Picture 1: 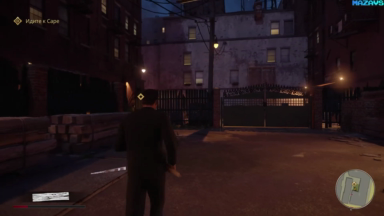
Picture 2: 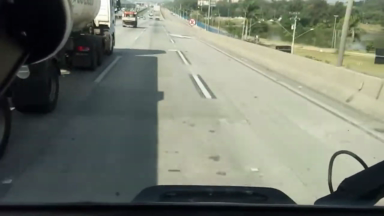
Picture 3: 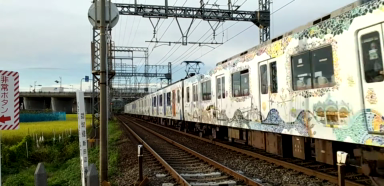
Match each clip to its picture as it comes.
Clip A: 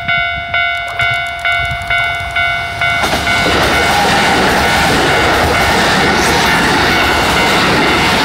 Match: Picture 3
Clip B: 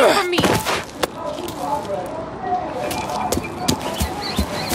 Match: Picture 1